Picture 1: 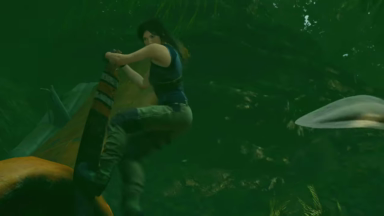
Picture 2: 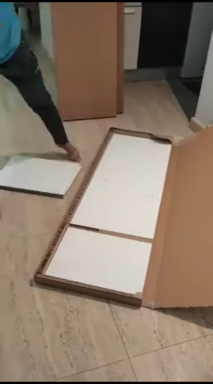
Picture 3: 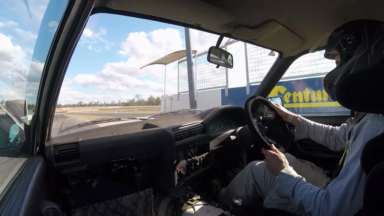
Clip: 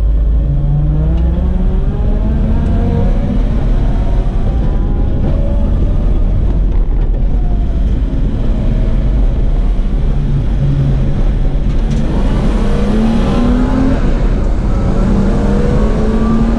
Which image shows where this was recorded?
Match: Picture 3